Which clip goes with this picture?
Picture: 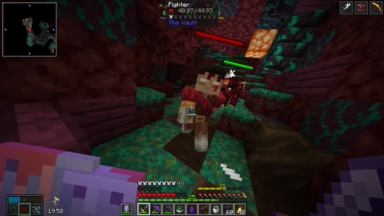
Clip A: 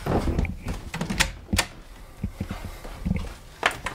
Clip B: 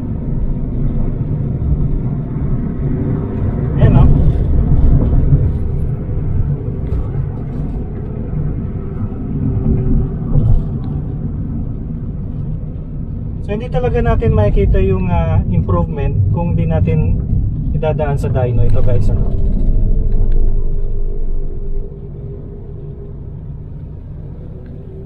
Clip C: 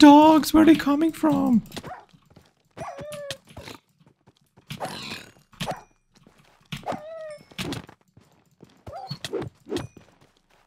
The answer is C